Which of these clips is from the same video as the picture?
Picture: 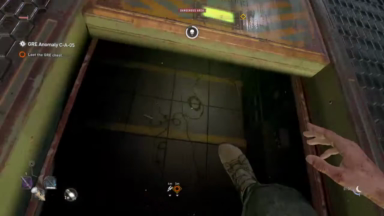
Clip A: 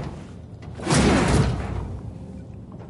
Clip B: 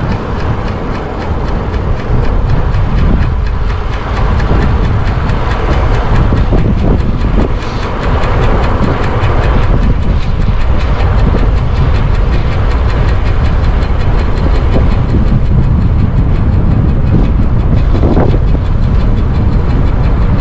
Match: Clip A